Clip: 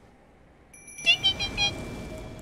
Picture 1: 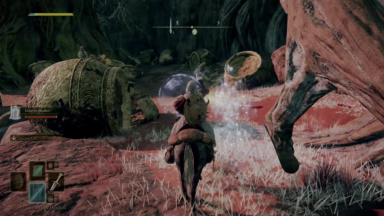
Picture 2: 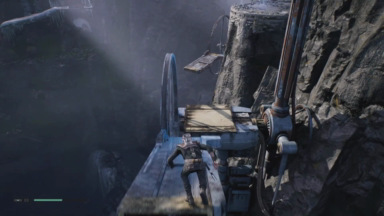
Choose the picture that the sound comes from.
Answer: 1